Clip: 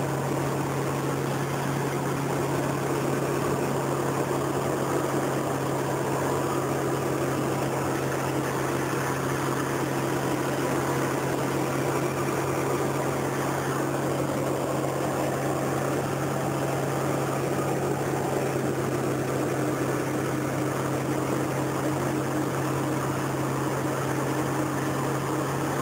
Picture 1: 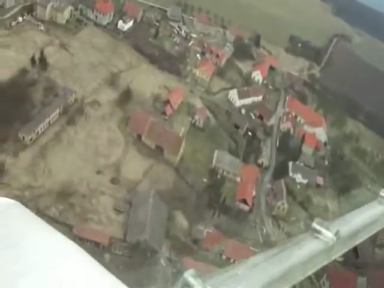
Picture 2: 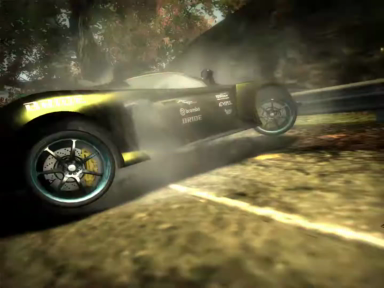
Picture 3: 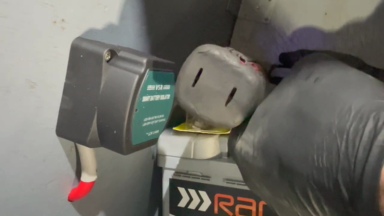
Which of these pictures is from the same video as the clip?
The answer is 1